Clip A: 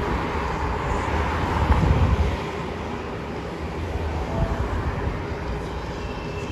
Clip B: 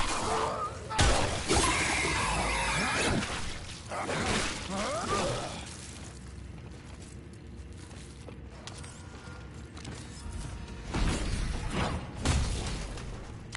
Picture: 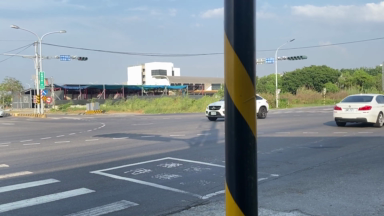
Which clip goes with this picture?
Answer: A